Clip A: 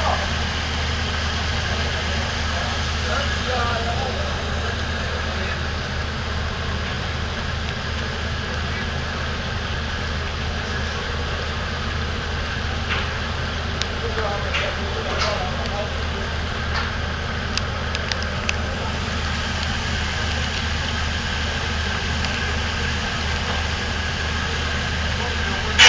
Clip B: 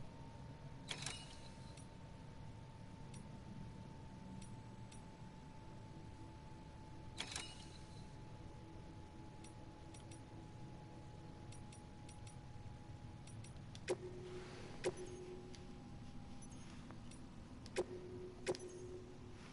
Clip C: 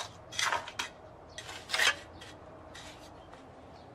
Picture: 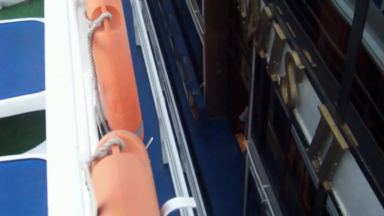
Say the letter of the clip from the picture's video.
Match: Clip A